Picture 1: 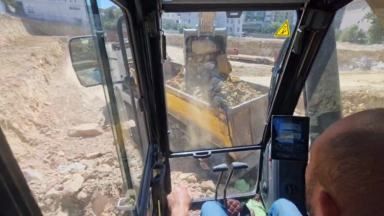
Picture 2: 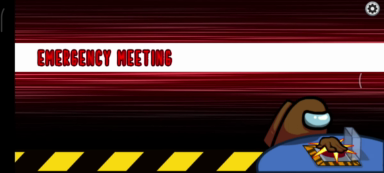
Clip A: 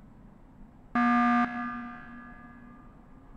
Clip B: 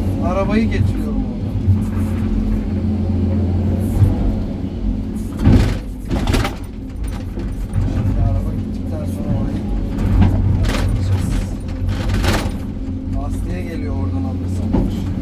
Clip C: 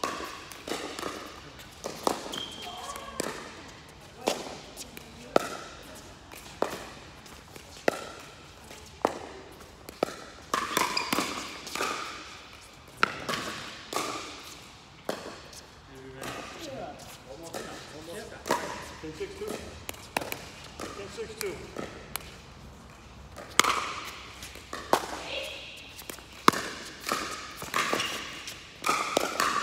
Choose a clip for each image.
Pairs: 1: B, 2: A